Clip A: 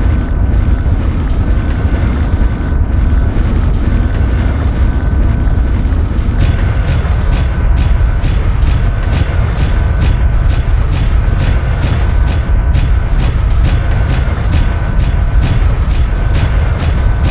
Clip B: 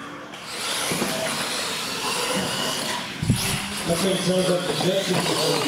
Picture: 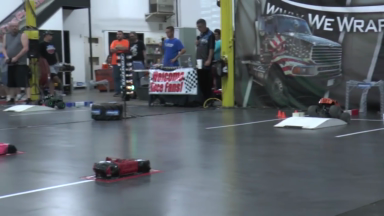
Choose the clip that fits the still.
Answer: B